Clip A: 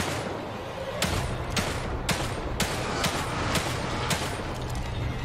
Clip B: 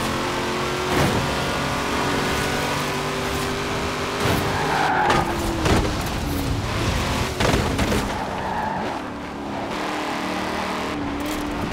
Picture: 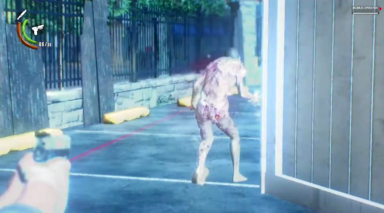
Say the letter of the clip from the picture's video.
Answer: A